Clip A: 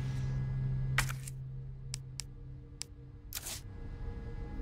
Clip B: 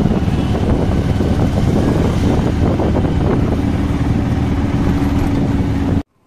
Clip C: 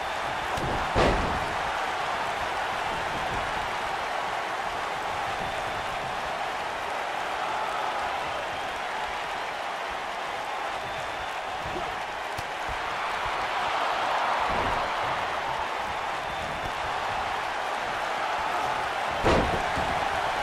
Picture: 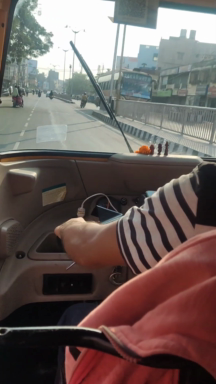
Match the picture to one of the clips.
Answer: B